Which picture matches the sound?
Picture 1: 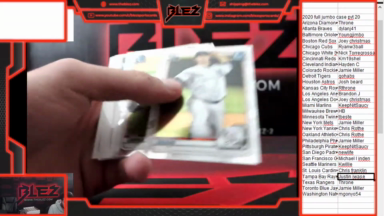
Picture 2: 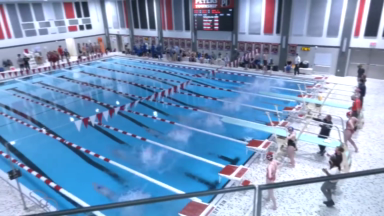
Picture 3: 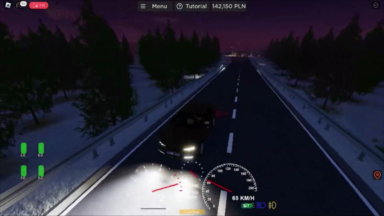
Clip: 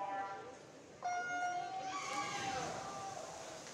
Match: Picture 2